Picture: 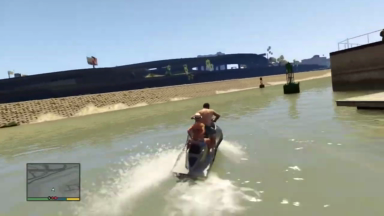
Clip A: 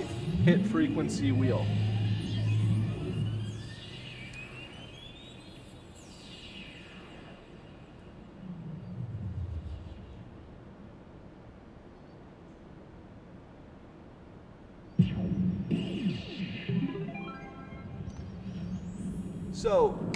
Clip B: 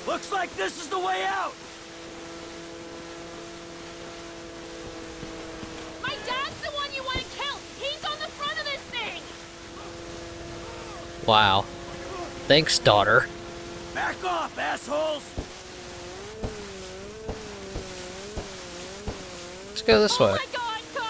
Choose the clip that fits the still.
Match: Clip B